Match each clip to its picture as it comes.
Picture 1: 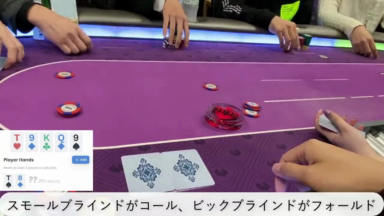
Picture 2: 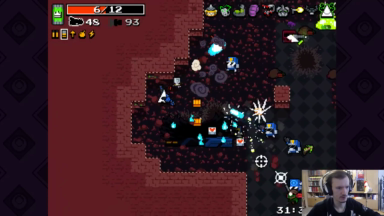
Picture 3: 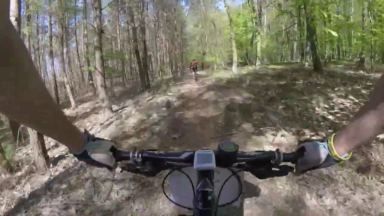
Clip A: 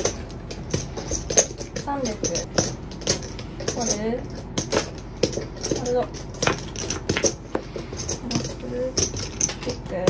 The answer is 1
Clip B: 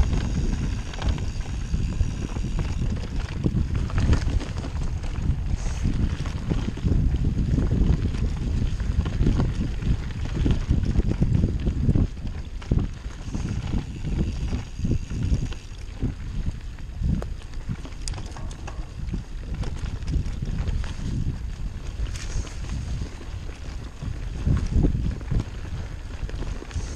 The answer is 3